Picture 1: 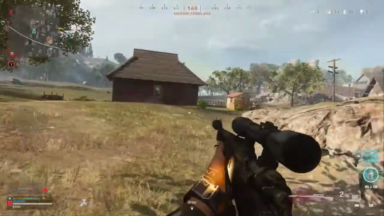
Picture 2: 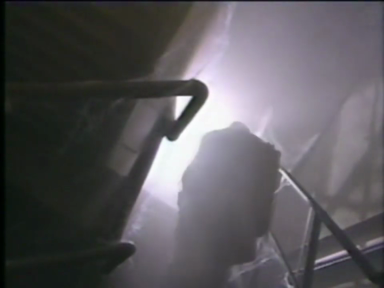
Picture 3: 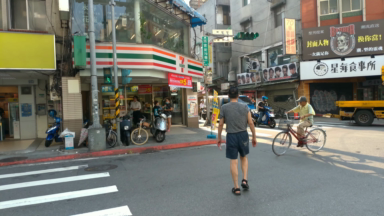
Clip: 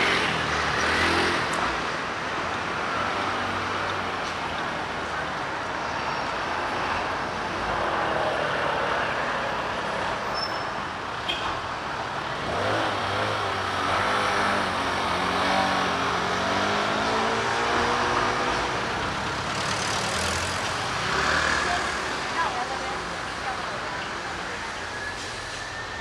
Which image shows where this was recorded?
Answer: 3